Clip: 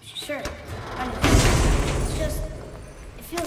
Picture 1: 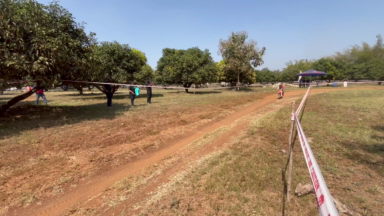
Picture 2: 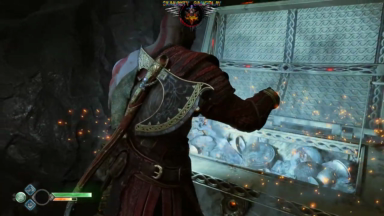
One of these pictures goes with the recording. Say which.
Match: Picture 2